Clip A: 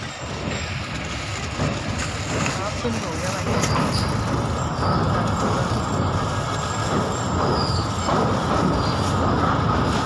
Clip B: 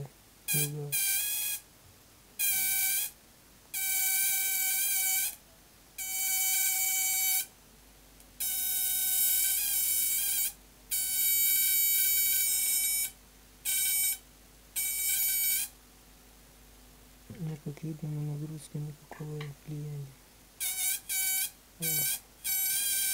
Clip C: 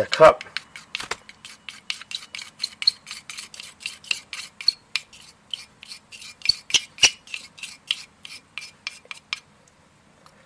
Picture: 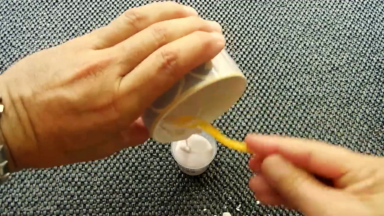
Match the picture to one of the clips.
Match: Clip C